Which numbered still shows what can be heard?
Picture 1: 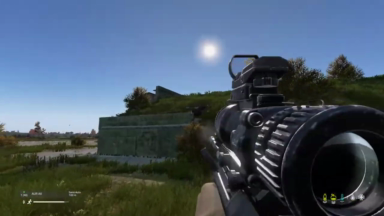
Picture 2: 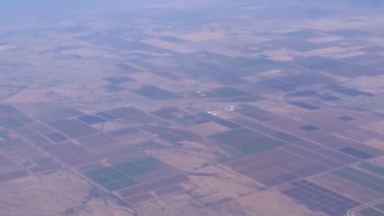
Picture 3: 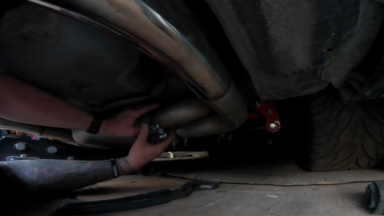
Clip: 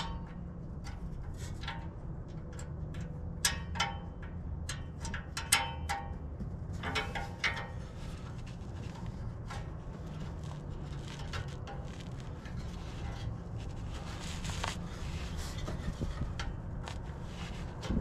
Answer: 3